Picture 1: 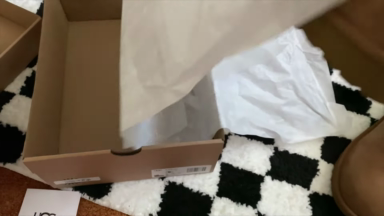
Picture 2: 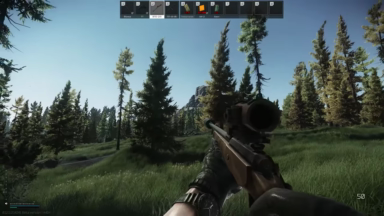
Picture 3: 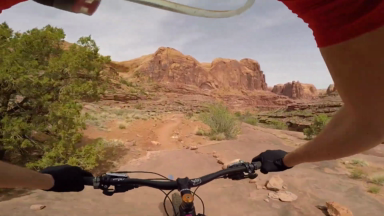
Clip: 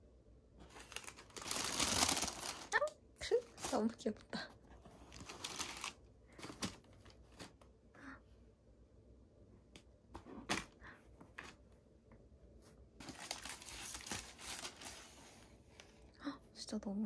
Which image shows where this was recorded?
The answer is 1